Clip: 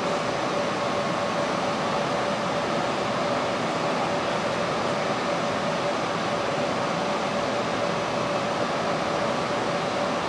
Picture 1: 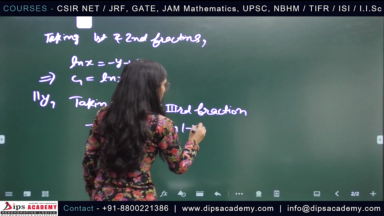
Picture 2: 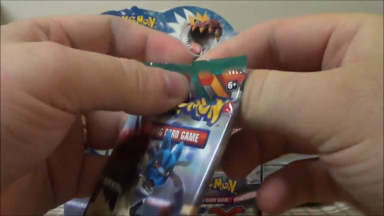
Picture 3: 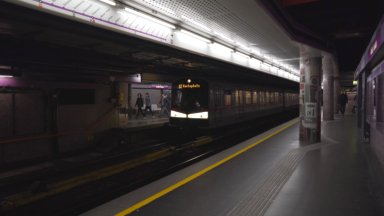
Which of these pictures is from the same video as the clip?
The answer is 3